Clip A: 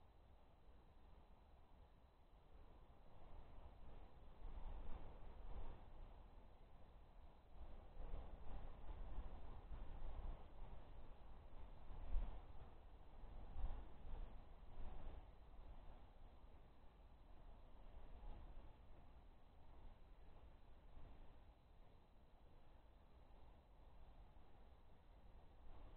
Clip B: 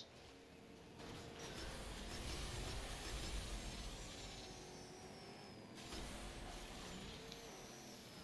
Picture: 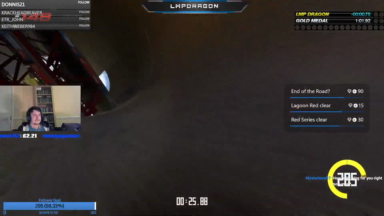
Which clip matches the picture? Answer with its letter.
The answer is B